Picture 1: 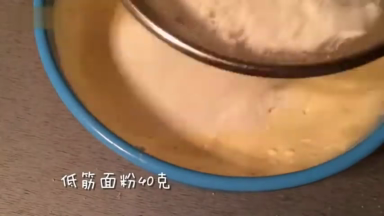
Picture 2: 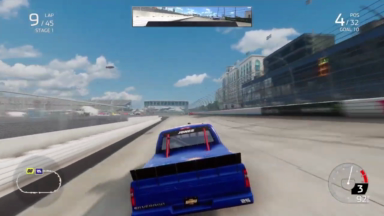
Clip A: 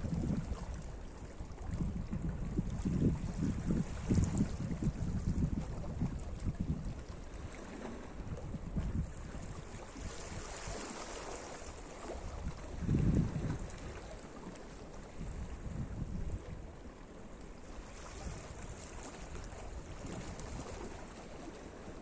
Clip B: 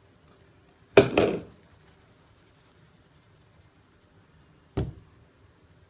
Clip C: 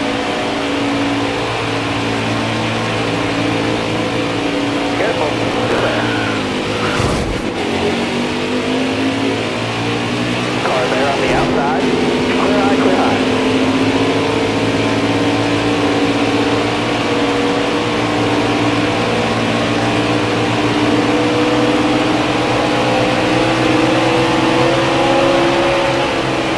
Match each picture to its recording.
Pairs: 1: B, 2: C